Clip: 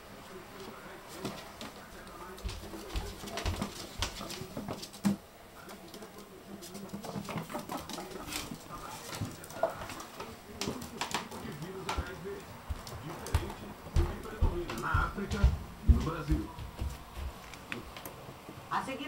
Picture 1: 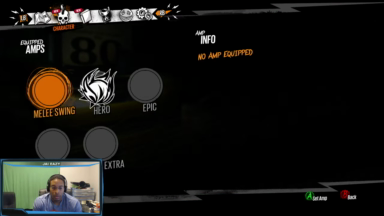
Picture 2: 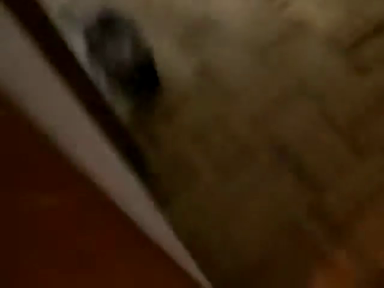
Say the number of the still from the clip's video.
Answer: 2